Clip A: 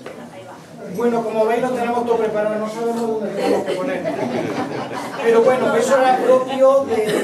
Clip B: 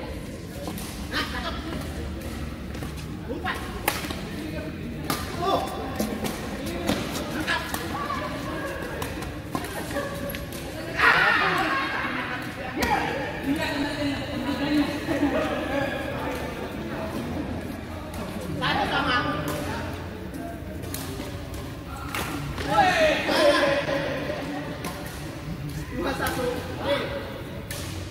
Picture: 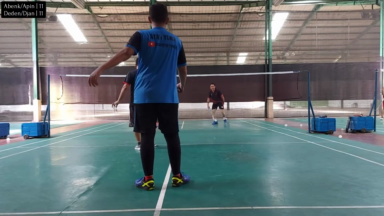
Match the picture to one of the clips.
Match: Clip B